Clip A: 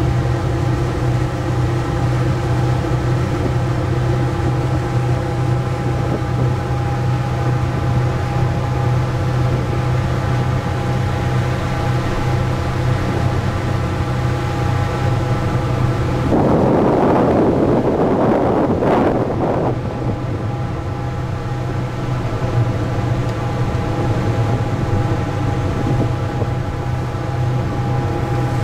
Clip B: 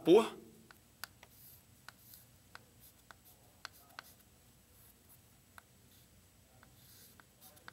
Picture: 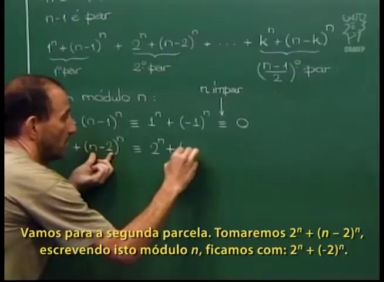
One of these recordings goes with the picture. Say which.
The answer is B